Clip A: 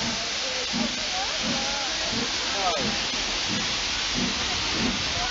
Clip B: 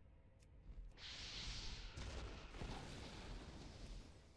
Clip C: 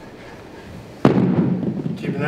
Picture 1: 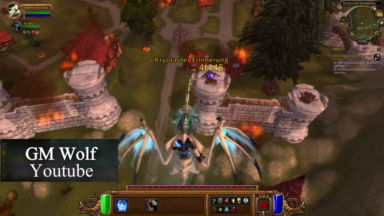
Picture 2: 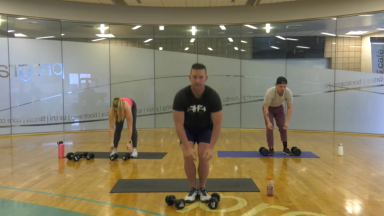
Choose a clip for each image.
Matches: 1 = B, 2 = C